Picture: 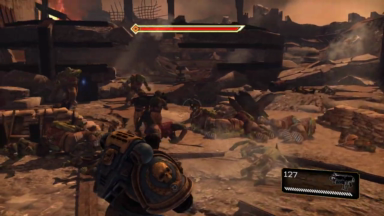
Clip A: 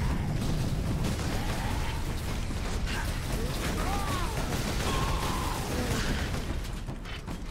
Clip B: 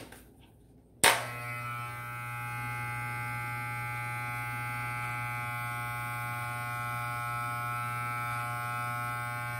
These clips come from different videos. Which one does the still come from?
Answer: A